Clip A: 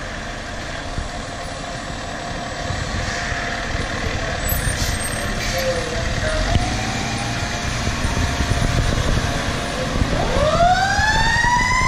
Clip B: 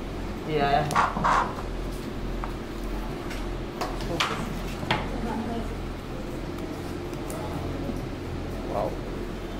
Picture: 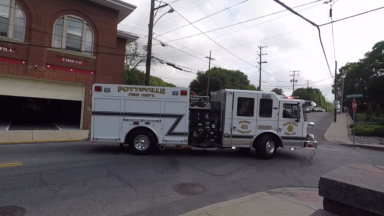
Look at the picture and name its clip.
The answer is A